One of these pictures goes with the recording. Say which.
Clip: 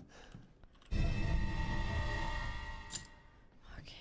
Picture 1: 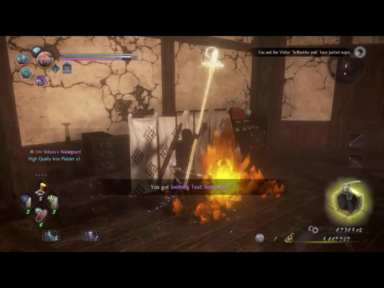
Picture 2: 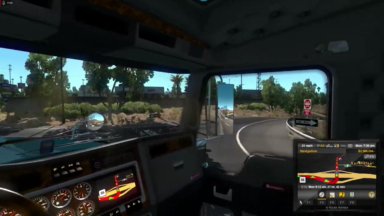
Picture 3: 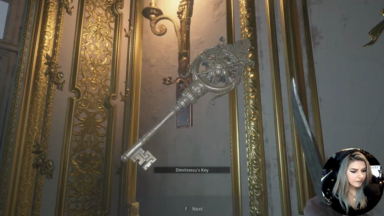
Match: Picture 3